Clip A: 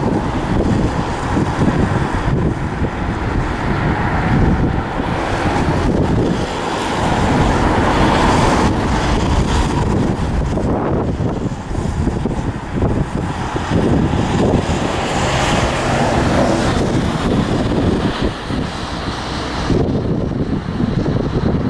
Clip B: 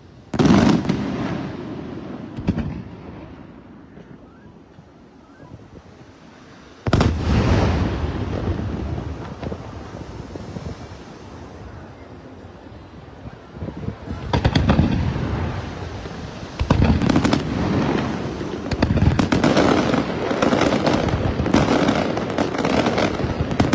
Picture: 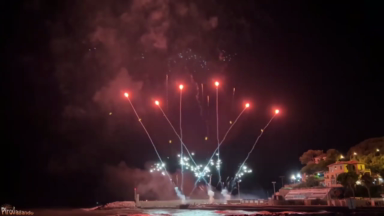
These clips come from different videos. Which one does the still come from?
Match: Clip B